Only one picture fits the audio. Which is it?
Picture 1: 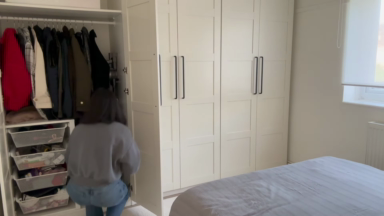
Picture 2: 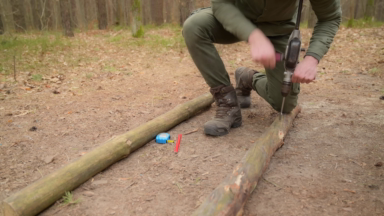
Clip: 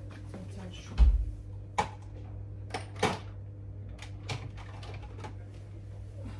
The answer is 1